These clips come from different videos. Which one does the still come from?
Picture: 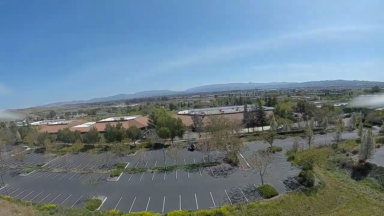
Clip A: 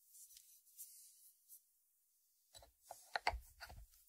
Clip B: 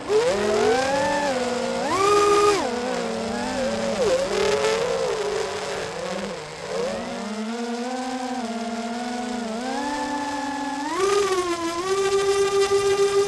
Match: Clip B